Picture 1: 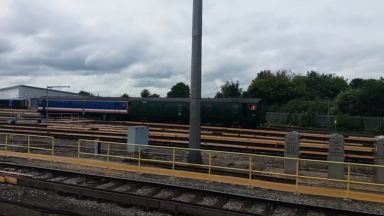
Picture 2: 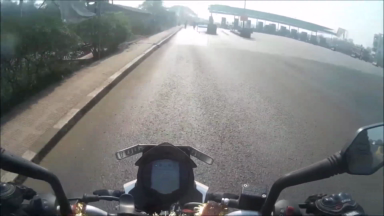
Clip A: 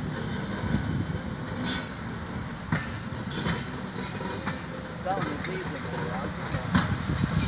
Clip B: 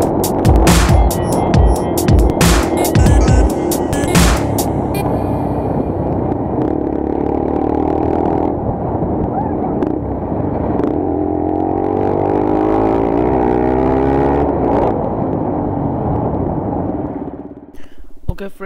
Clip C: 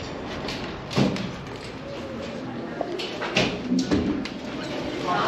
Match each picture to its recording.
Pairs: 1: A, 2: B